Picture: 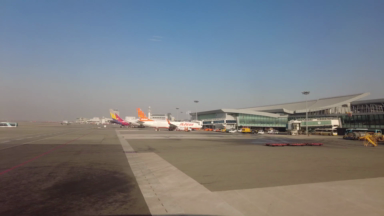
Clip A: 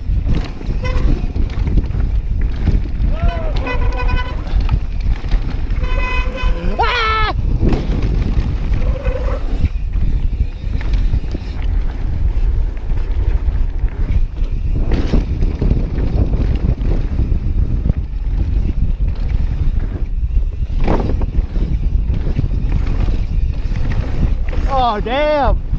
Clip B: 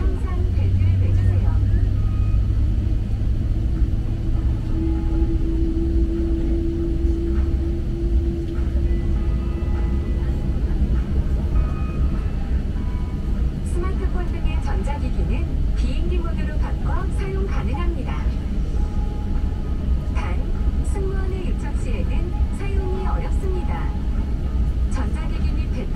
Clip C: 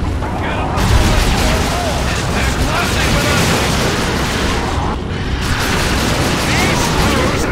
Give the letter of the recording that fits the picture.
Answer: B